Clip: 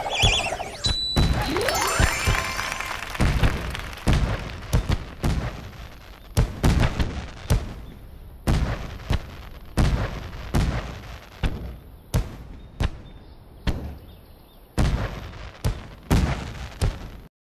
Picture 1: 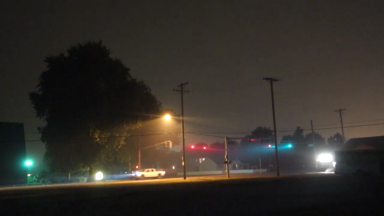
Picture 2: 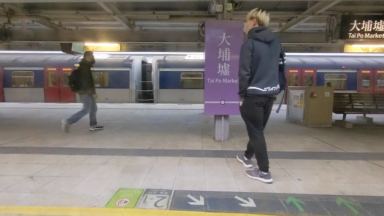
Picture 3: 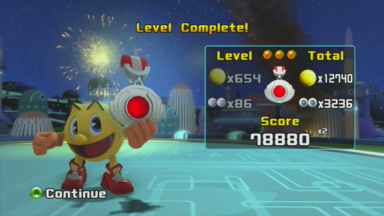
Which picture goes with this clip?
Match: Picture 3